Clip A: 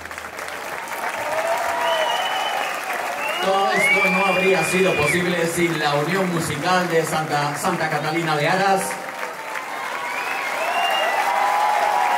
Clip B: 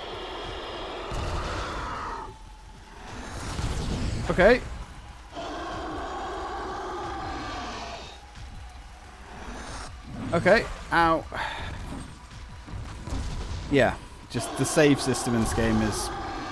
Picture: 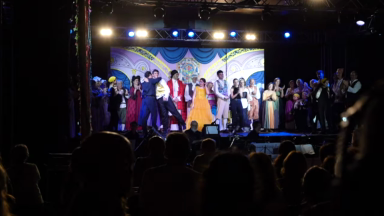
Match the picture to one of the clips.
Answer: A